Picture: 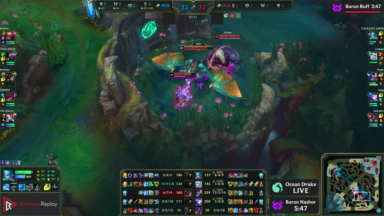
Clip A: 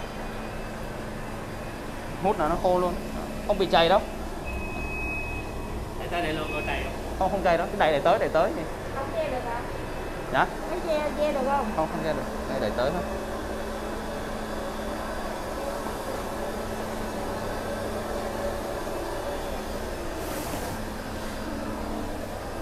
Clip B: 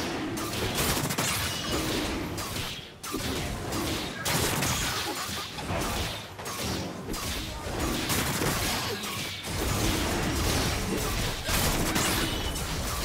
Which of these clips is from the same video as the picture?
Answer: B